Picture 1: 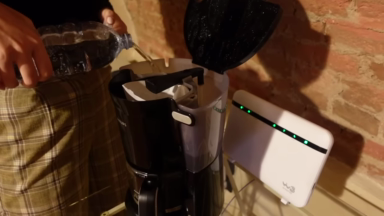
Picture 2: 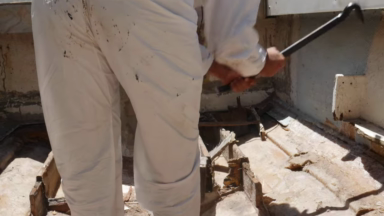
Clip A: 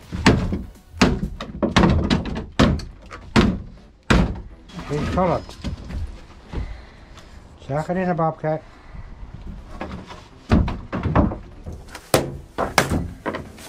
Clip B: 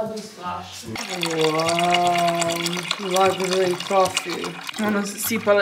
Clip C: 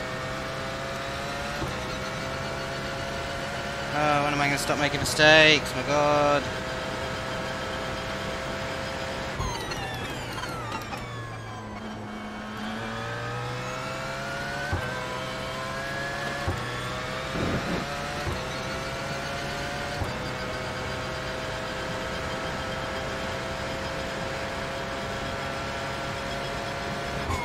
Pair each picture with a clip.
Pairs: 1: B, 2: A